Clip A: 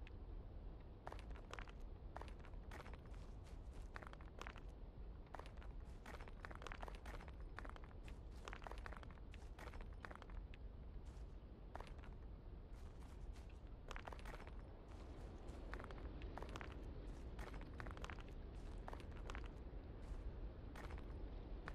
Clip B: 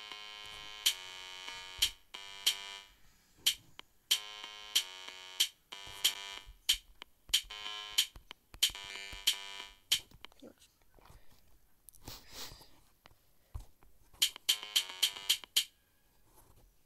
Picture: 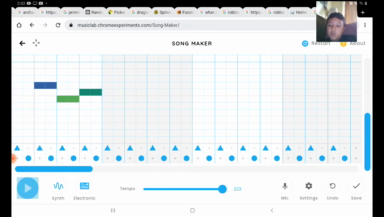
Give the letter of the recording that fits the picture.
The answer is B